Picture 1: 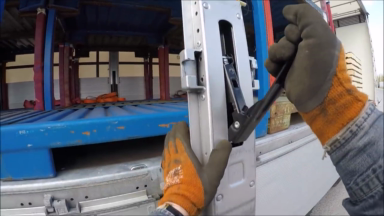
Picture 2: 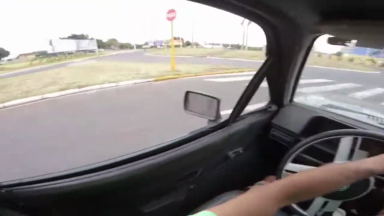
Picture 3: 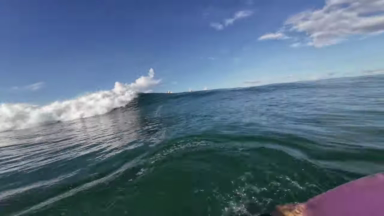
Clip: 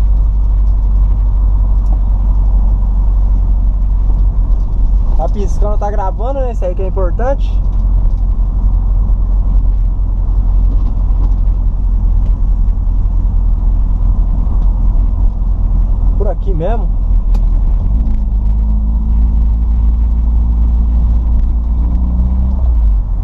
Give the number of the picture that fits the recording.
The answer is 2